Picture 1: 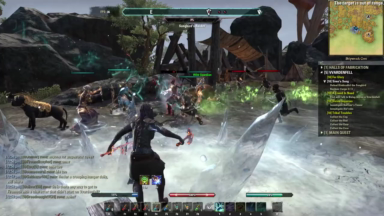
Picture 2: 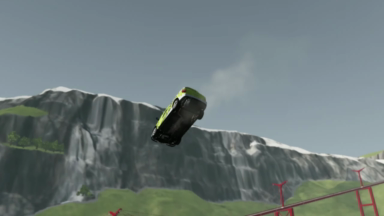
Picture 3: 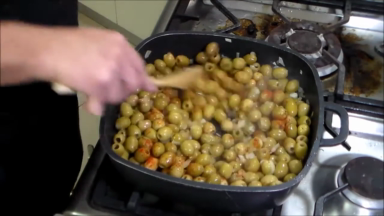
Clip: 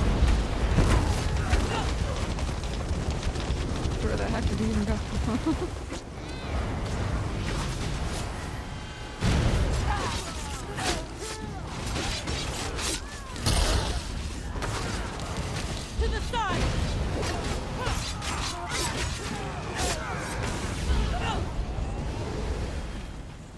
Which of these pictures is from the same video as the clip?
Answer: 1